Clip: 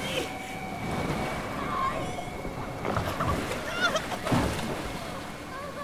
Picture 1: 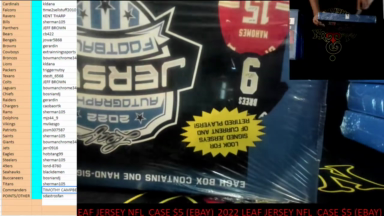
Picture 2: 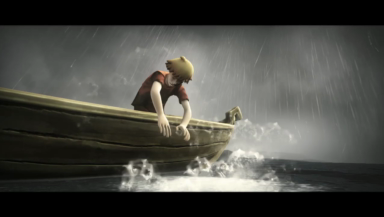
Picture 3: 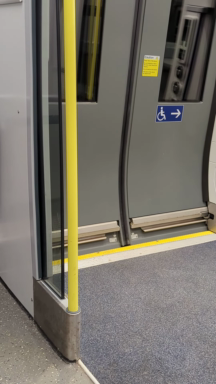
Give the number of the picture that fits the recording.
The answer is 2